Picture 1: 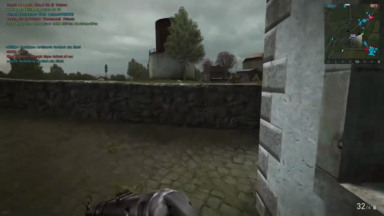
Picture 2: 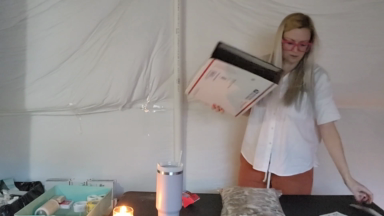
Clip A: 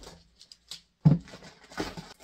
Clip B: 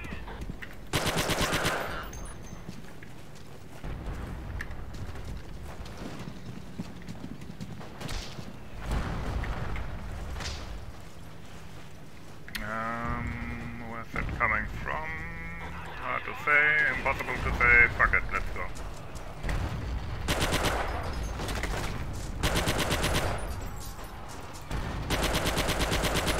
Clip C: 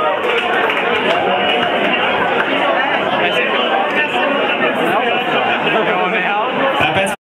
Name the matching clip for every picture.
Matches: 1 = B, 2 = A